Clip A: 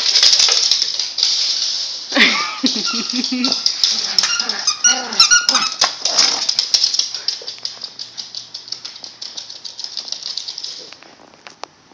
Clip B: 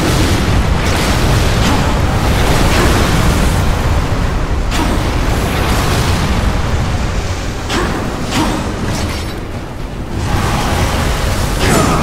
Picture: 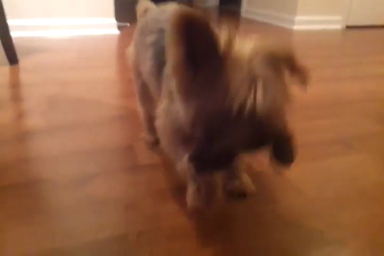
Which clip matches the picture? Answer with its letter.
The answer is A